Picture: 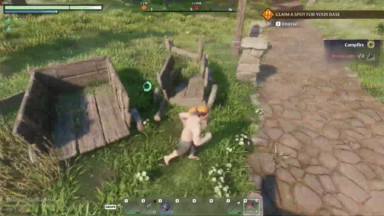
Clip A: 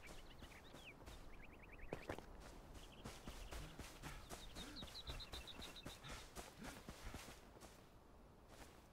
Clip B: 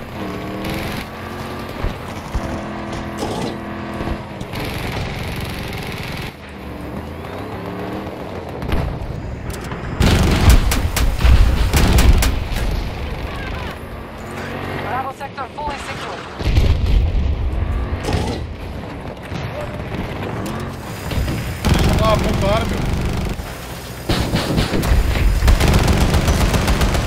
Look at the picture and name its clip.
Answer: A